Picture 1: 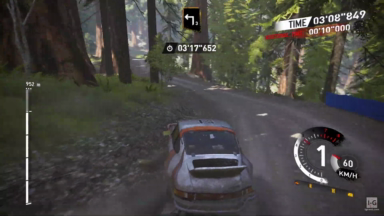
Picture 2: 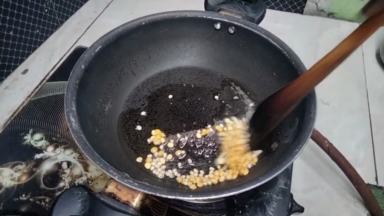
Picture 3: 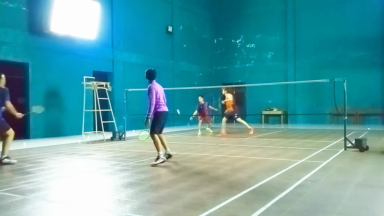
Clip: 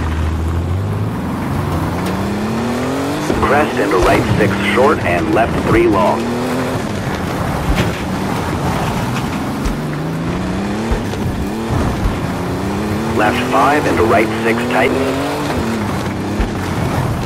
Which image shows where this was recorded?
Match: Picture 1